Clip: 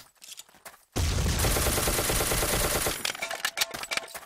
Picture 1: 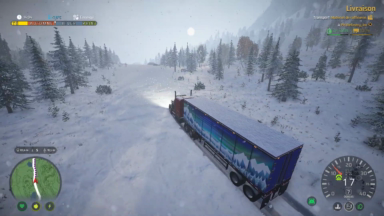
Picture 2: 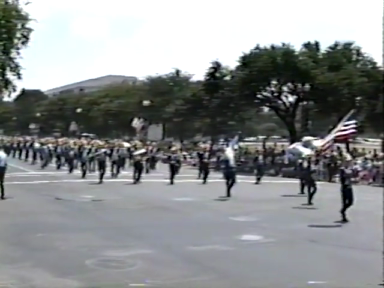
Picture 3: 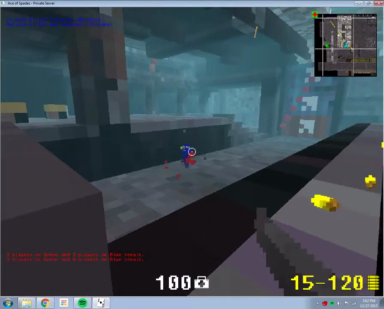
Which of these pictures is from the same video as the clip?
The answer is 3